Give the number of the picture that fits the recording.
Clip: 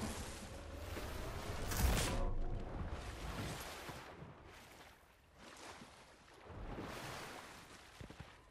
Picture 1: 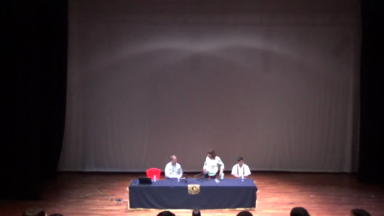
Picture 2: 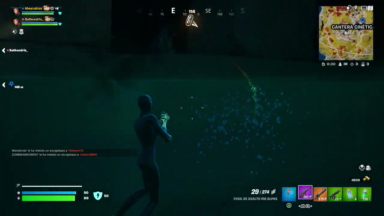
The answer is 2